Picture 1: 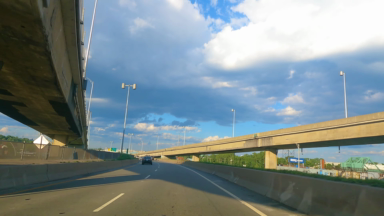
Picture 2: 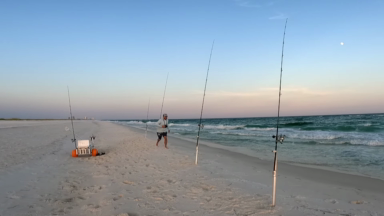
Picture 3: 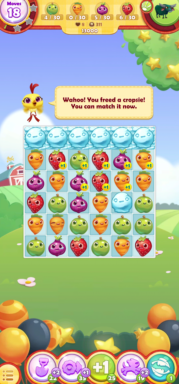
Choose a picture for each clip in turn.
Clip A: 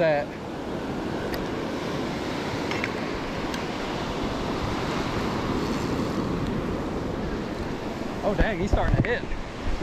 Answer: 2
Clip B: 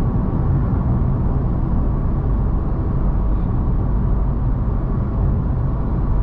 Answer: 1